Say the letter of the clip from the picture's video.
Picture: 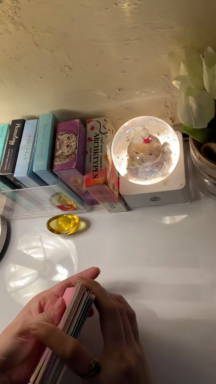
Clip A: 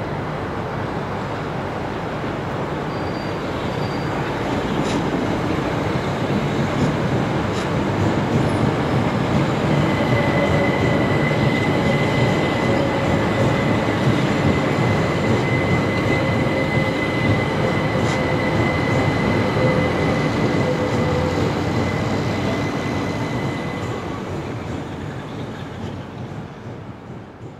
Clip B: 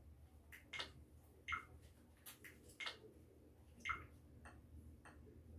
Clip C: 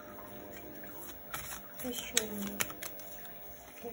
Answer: C